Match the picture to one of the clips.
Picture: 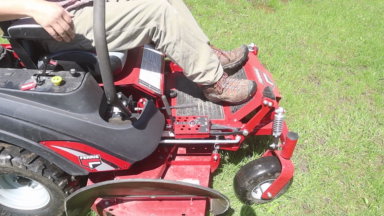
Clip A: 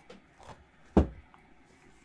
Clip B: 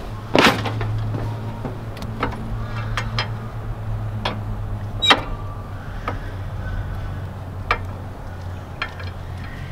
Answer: B